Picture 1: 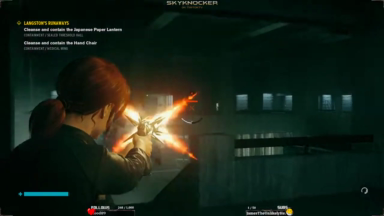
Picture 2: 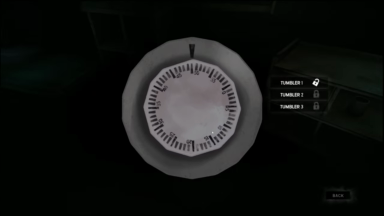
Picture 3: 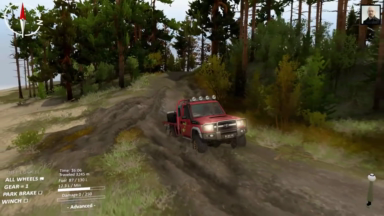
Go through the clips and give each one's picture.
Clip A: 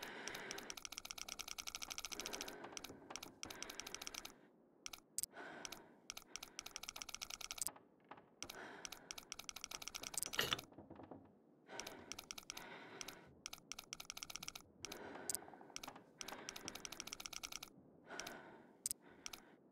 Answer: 2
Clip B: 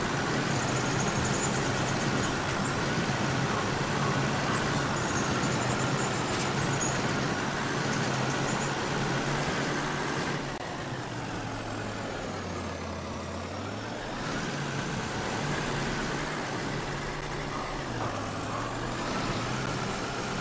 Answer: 3